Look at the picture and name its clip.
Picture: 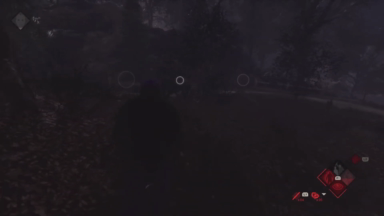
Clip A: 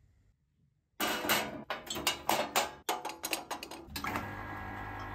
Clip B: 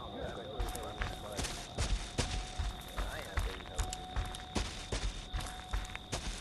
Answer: B